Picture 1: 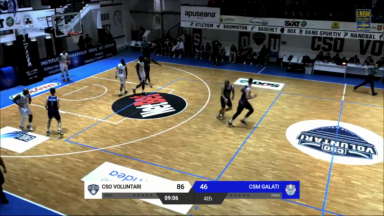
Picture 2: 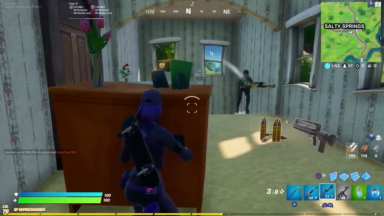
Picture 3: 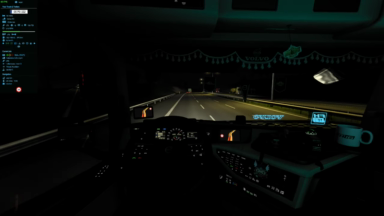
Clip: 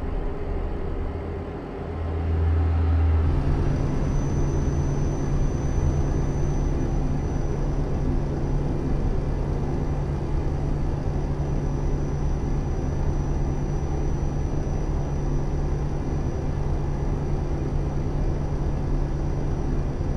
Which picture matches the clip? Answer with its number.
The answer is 3